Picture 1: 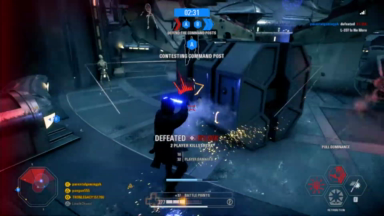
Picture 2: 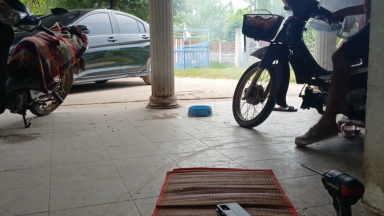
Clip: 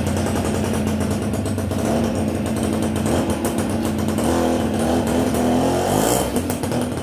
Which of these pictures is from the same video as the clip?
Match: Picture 2